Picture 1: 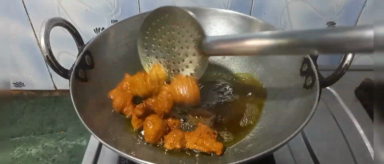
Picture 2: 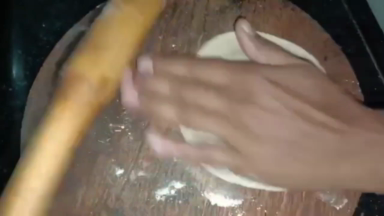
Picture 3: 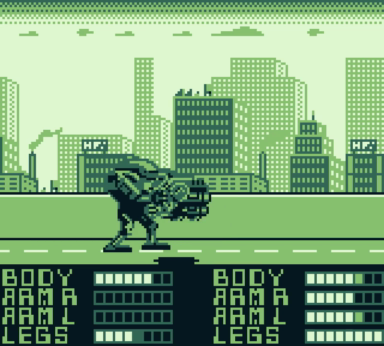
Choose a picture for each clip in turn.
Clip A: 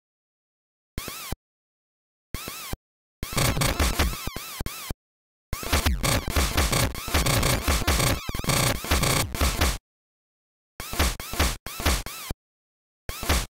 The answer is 3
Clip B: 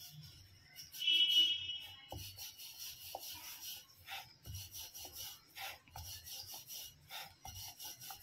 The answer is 2